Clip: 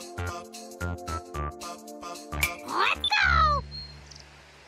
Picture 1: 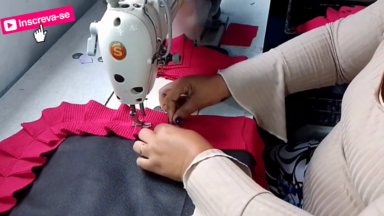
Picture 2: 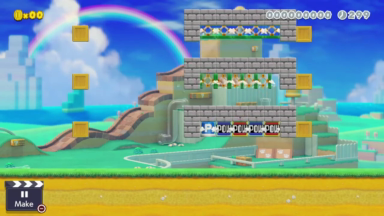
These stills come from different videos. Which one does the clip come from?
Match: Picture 2